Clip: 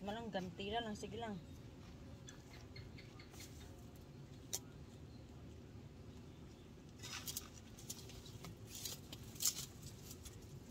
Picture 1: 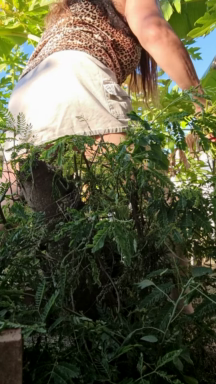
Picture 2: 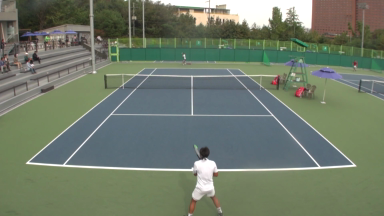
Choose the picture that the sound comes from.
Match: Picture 1